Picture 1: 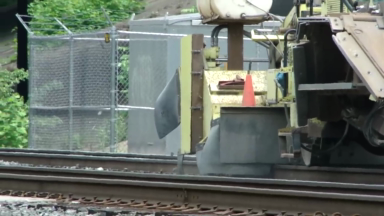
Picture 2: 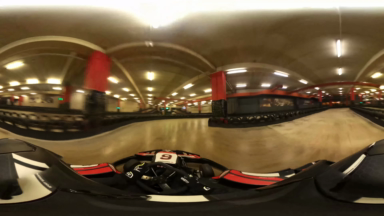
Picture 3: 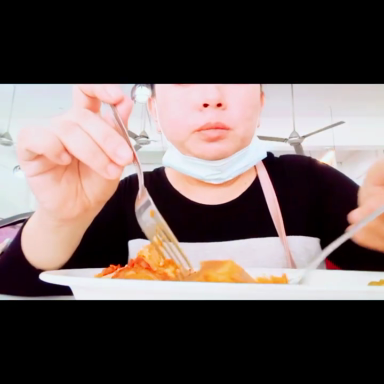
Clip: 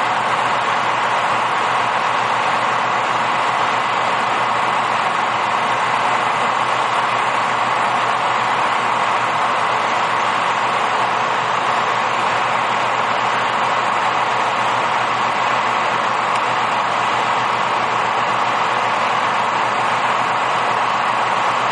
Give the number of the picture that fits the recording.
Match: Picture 1